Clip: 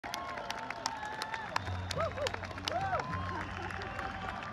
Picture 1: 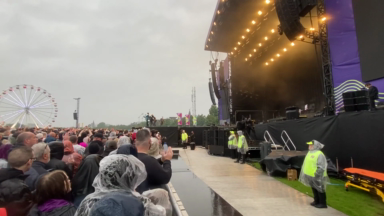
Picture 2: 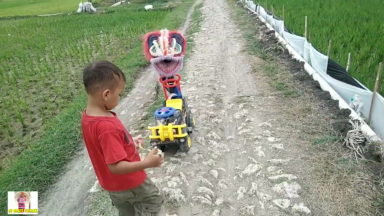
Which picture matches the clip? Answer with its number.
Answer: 1